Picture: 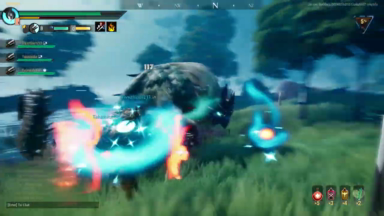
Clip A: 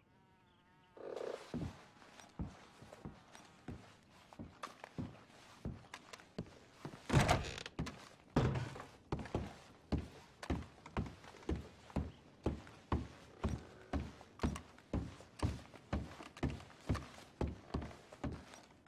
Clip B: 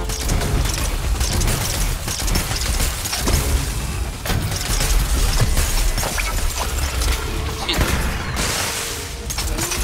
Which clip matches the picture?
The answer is B